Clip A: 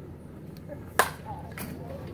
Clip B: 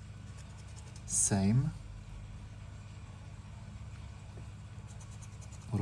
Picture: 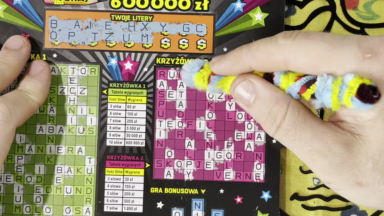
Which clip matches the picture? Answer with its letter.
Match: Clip B